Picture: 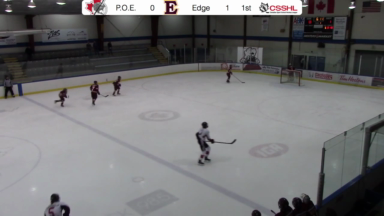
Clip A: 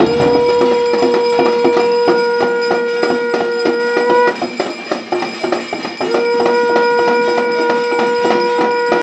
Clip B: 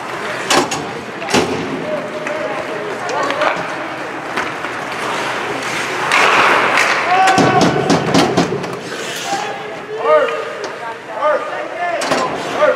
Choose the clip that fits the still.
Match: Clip B